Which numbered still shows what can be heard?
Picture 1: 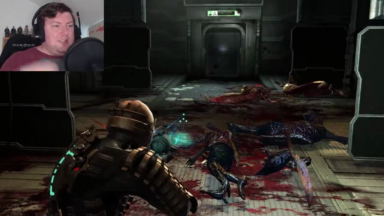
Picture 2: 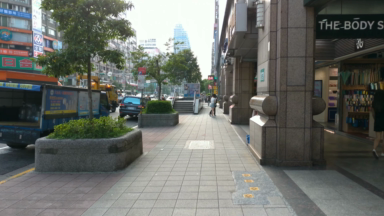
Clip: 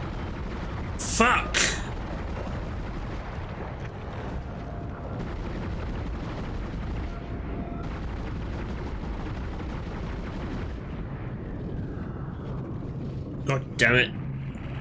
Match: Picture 1